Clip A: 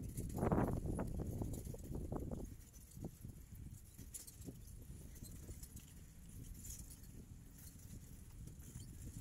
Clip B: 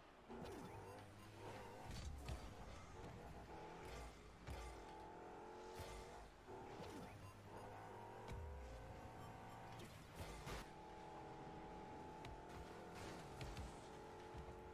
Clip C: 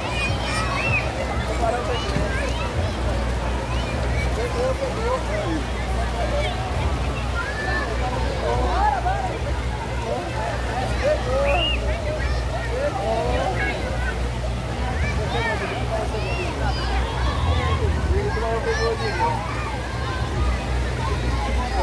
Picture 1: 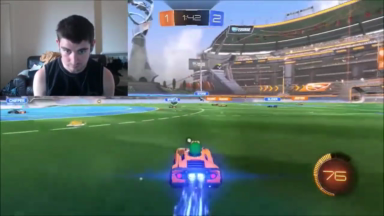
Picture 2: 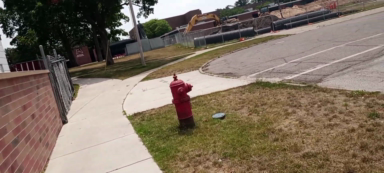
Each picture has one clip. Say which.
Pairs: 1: B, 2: A